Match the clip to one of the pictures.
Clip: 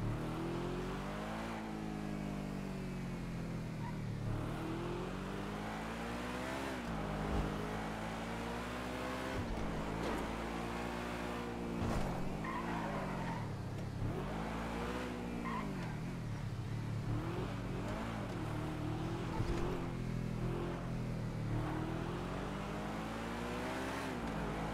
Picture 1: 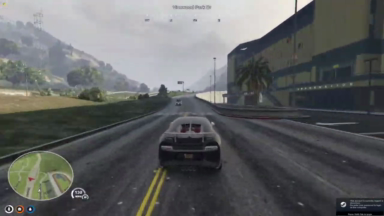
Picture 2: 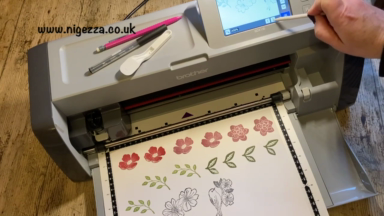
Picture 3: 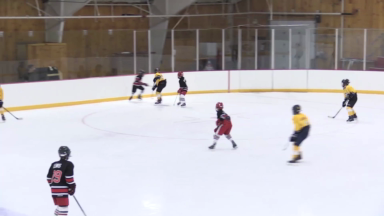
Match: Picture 1